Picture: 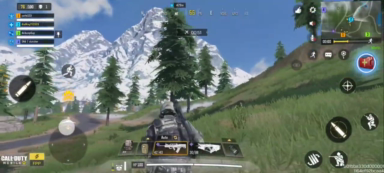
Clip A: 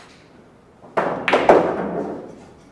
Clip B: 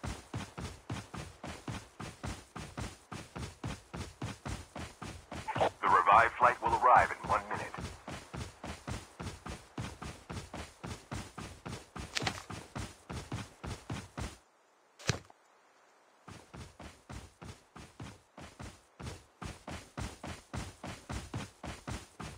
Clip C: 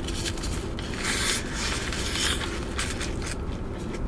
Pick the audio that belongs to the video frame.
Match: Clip B